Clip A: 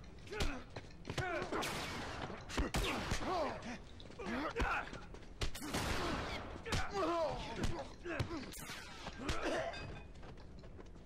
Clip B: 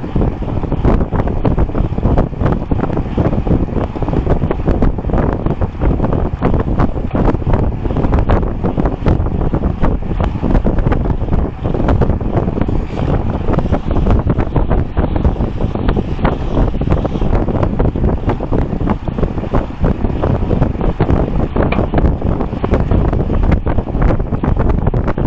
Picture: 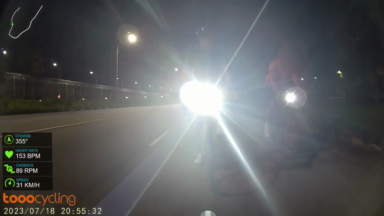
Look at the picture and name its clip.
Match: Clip B